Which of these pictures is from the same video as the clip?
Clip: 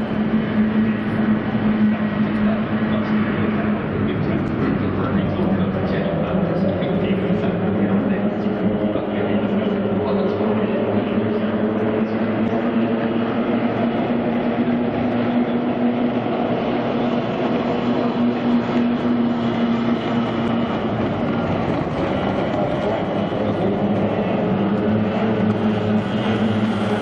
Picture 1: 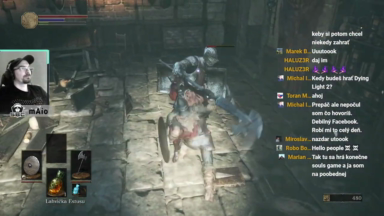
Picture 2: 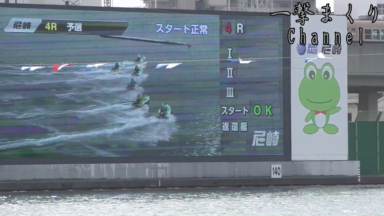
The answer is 2